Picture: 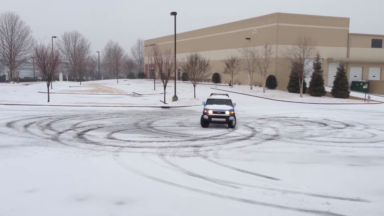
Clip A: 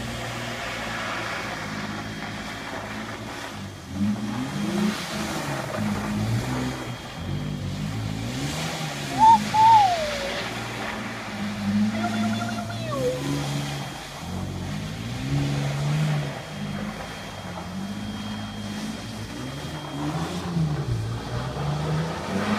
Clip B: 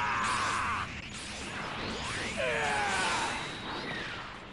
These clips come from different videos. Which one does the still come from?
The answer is A